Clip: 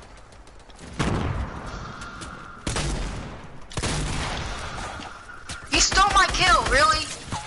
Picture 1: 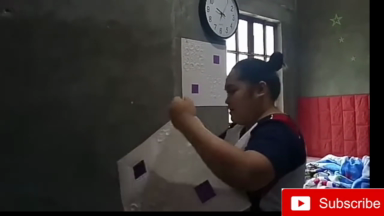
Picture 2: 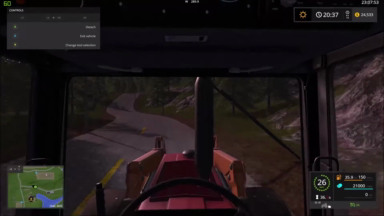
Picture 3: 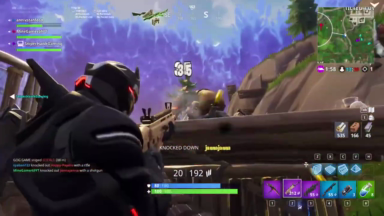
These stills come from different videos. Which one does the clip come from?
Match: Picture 3